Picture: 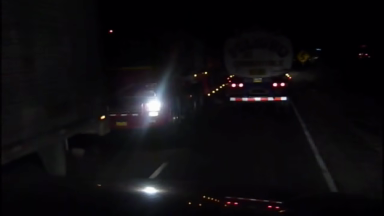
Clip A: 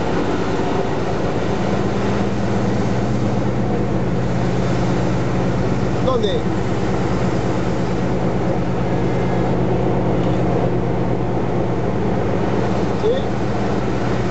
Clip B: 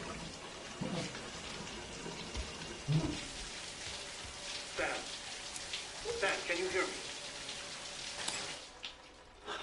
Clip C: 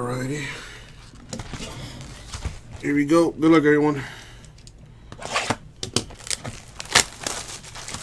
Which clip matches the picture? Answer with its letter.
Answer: A